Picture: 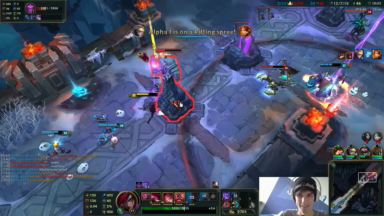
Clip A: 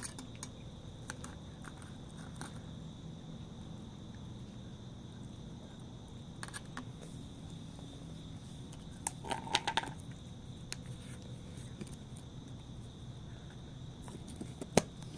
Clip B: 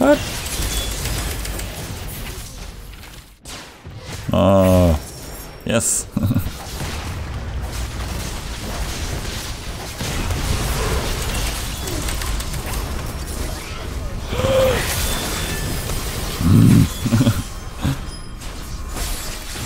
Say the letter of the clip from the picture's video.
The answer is B